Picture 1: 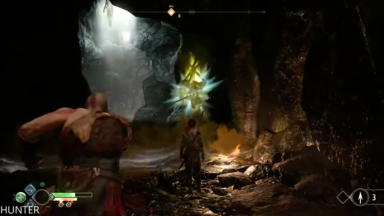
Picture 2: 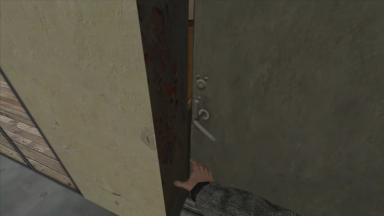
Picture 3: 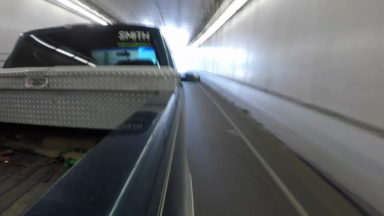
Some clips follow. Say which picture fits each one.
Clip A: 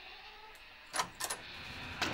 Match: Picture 2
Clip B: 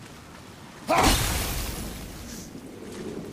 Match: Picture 1